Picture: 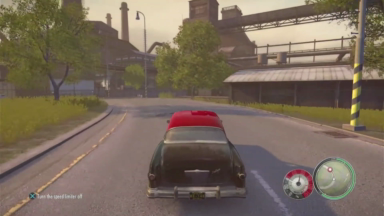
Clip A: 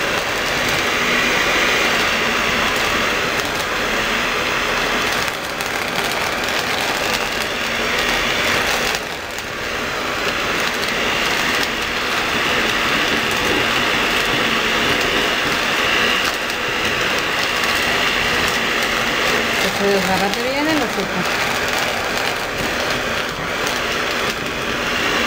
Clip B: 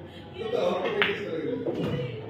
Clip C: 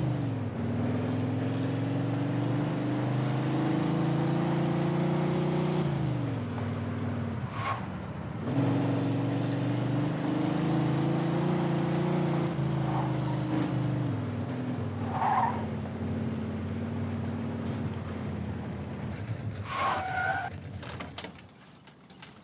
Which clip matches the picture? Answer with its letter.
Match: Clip C